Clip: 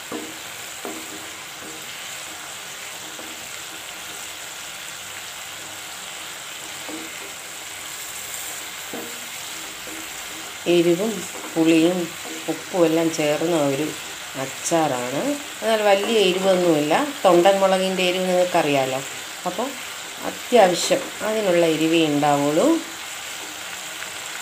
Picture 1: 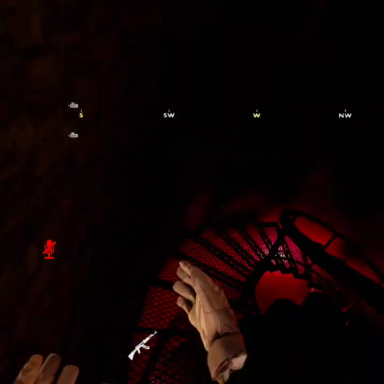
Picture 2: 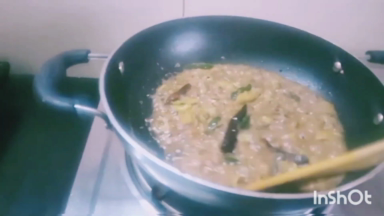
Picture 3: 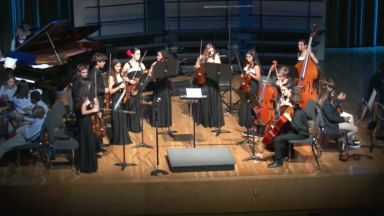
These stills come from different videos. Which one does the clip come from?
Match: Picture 2